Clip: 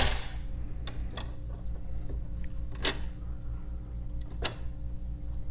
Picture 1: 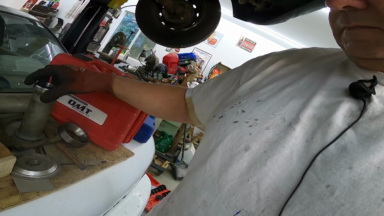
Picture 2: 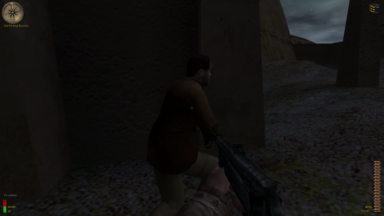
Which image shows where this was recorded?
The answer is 1